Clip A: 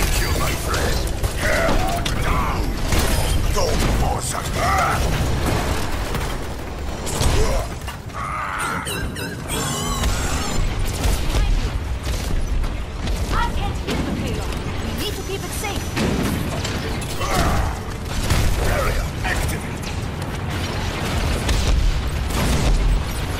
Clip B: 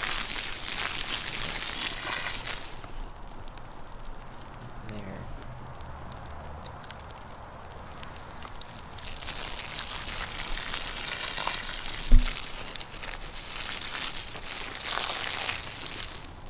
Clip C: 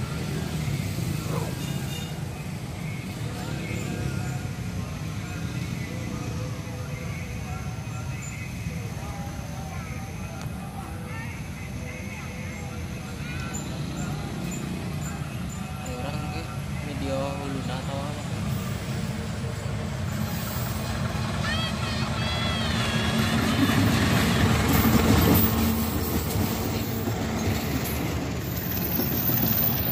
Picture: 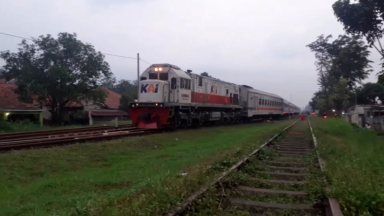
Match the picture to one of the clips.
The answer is C